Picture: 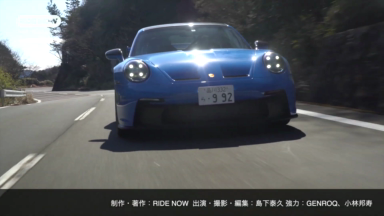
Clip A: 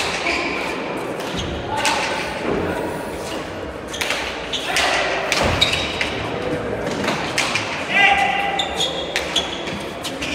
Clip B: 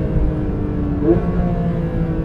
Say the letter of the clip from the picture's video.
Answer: B